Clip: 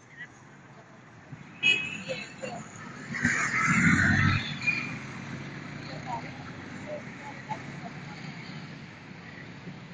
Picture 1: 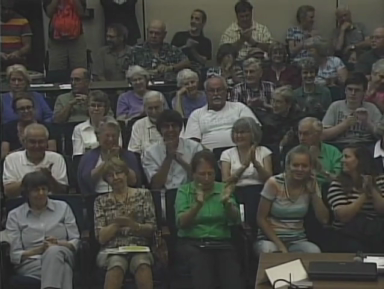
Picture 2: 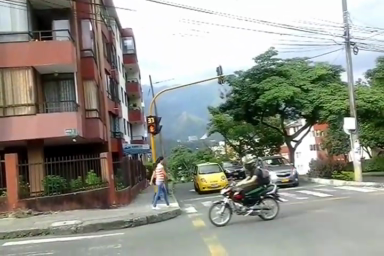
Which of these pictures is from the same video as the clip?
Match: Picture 2